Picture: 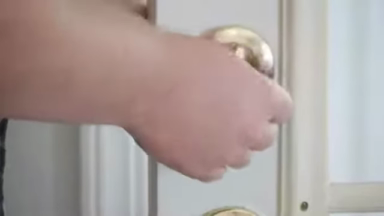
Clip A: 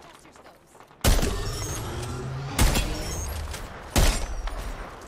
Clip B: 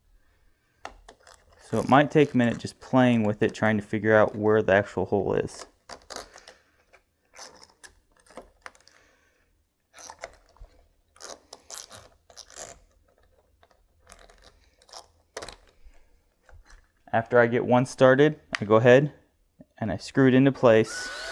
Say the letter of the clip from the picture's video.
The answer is B